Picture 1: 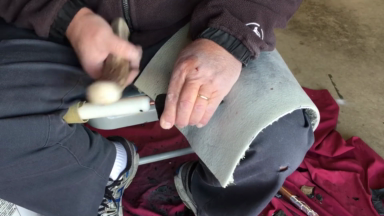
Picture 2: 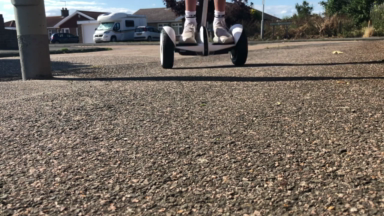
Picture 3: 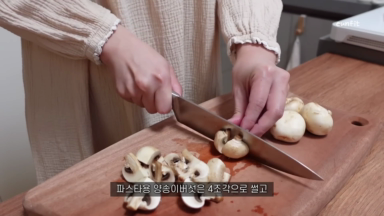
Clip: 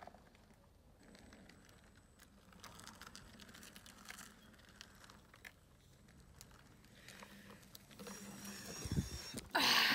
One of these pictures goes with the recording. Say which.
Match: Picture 2